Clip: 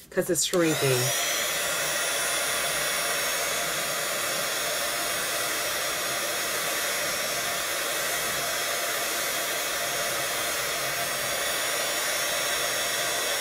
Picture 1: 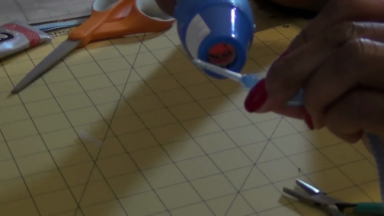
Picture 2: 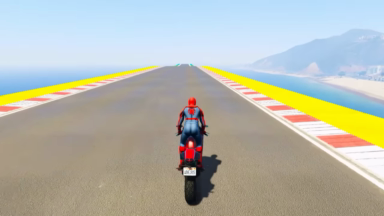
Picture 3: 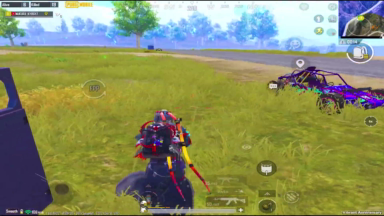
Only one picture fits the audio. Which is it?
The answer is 1